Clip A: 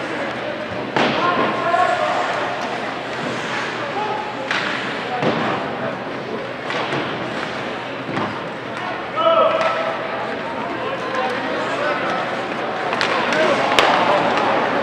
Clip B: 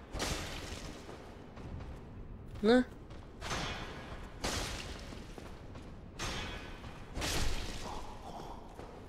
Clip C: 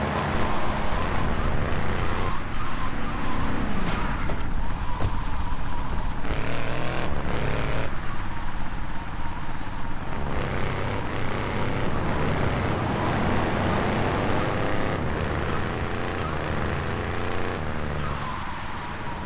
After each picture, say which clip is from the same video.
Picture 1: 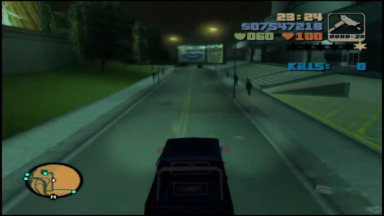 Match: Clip C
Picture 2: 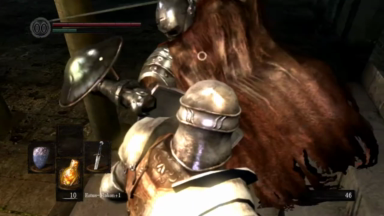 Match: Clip B